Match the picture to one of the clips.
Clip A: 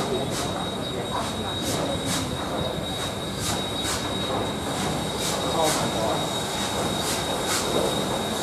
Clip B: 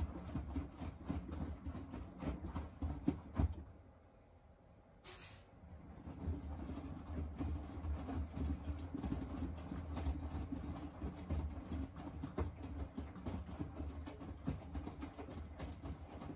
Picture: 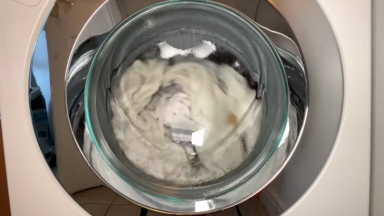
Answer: B